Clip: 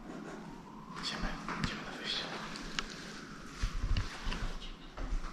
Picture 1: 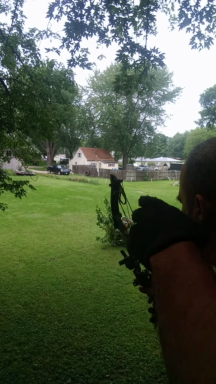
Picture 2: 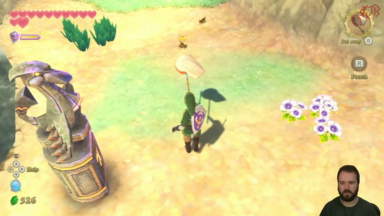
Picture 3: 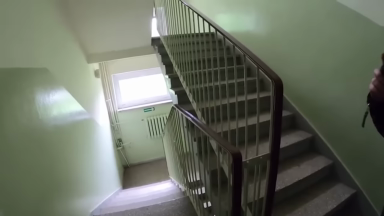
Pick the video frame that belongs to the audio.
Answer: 3